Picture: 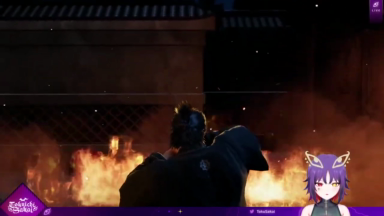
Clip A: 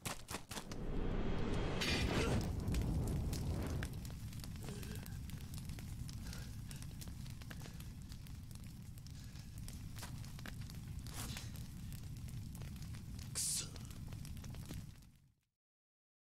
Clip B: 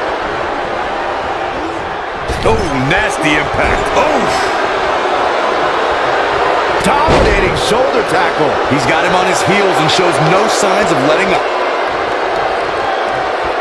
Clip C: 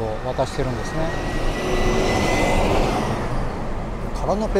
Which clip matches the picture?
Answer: A